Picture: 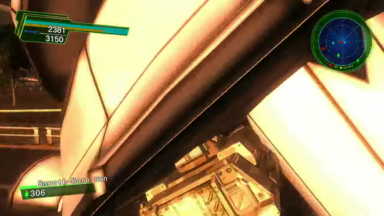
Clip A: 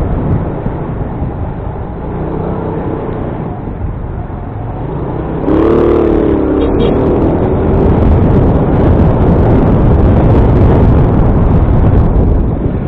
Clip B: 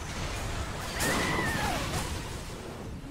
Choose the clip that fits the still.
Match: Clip B